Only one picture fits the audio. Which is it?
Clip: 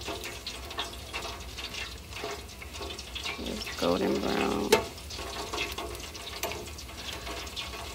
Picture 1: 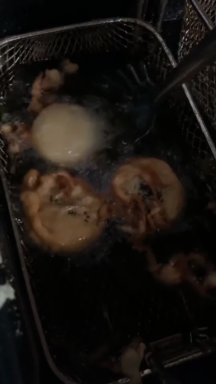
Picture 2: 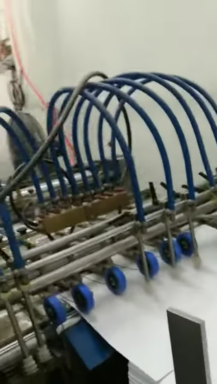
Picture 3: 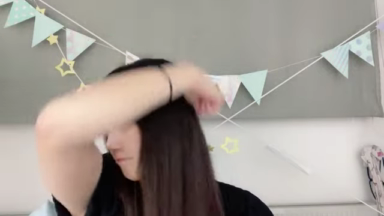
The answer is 1